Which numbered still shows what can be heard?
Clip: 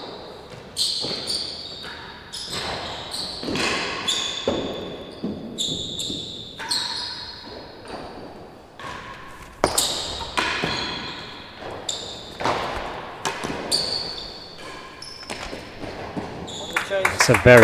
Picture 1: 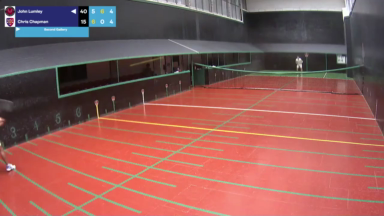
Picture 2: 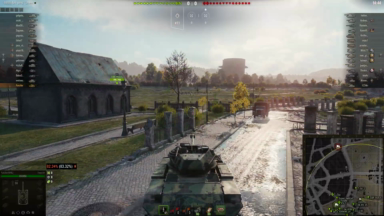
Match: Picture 1